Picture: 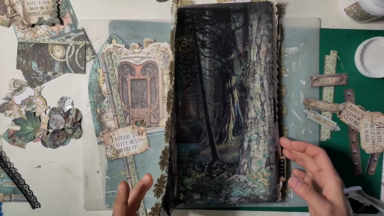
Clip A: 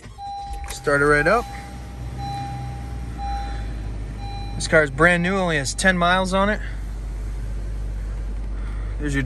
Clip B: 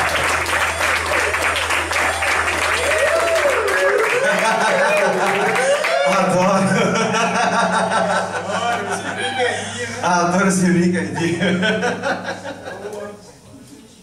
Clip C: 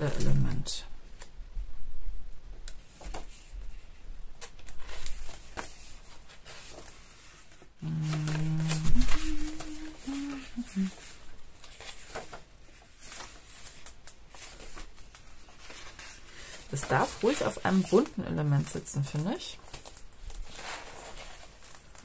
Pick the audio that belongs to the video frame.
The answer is C